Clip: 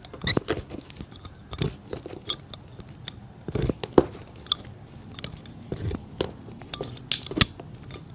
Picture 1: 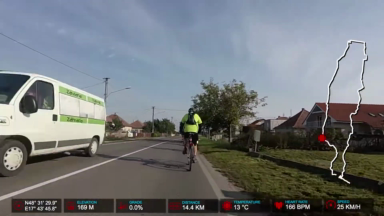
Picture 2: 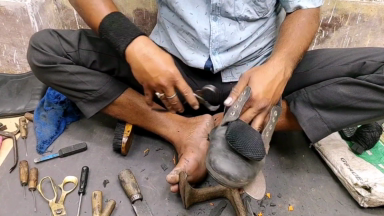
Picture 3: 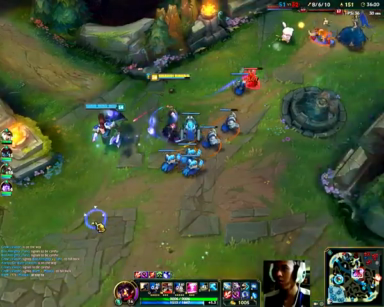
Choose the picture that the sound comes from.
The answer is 2